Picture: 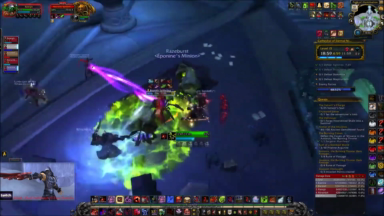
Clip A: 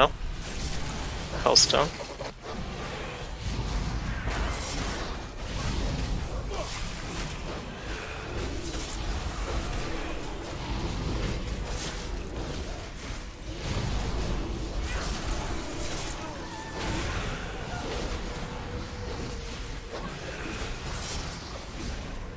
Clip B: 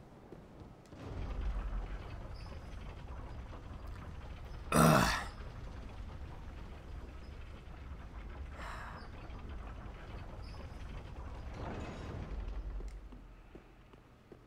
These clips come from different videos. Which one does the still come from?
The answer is A